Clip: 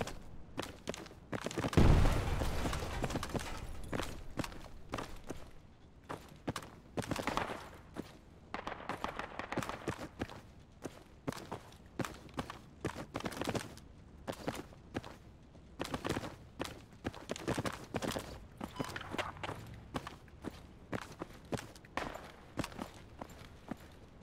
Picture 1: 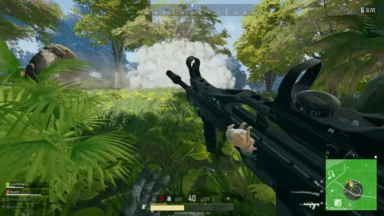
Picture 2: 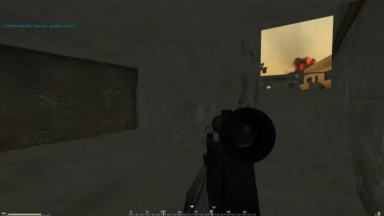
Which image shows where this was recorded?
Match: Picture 2